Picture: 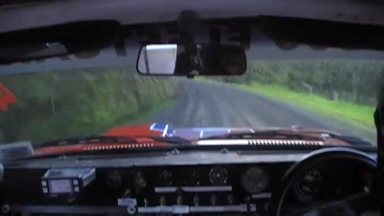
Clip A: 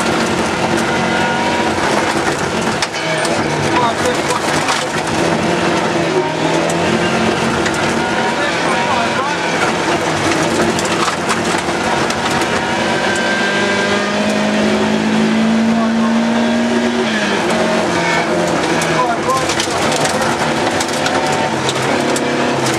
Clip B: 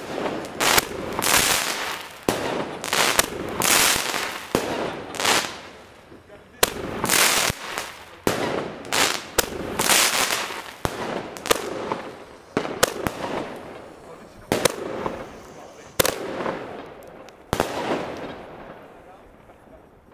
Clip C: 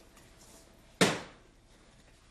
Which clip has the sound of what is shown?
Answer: A